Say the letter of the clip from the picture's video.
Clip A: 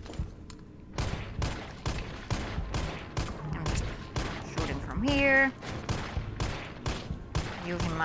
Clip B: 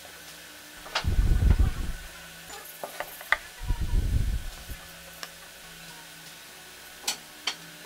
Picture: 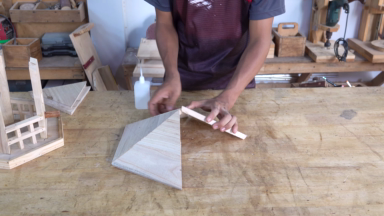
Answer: B